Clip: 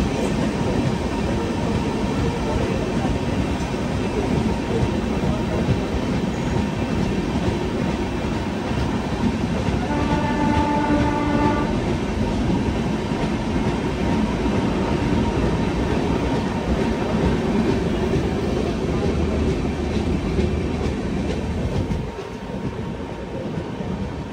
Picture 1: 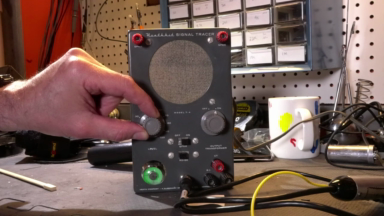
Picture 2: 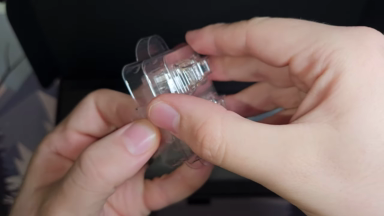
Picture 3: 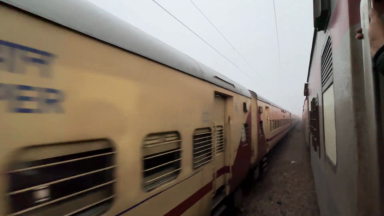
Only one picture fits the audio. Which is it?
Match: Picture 3